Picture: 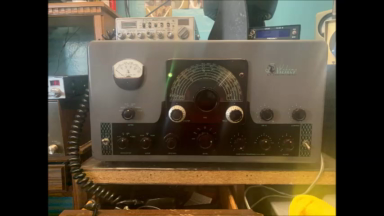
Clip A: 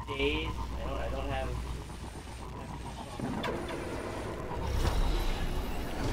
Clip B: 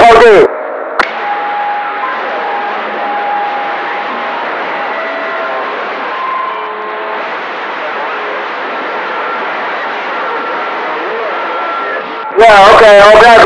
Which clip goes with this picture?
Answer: B